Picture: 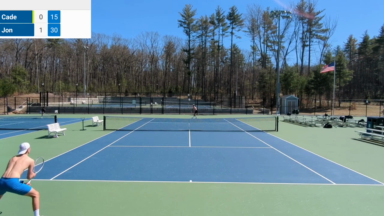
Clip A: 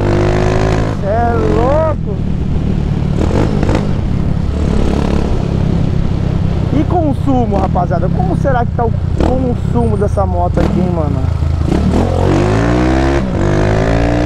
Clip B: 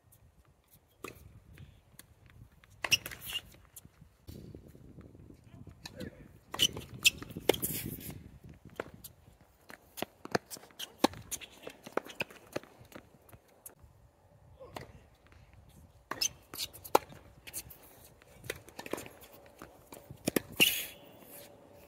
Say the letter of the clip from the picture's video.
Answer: B